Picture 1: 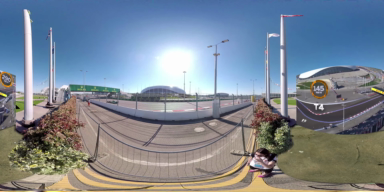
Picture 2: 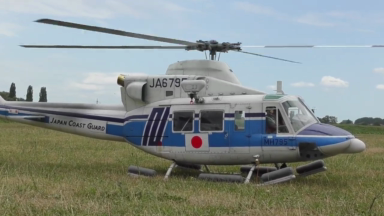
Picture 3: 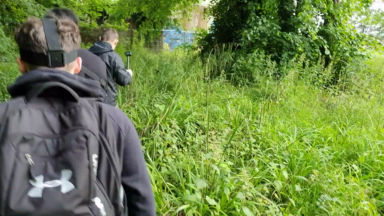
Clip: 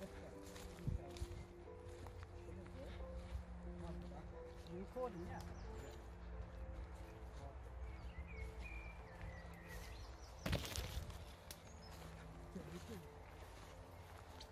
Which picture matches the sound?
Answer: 3